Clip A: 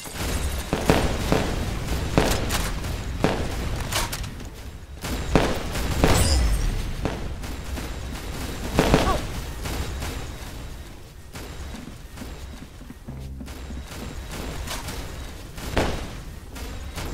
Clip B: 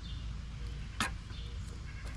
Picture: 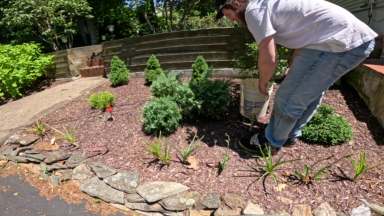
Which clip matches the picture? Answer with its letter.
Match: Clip B